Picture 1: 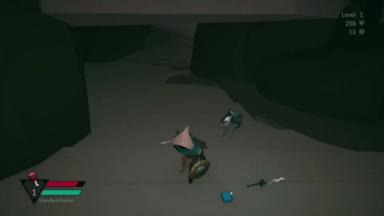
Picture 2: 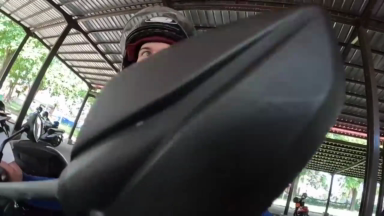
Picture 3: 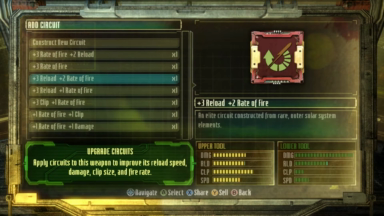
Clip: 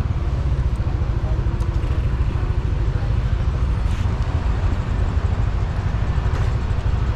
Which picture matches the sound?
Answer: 2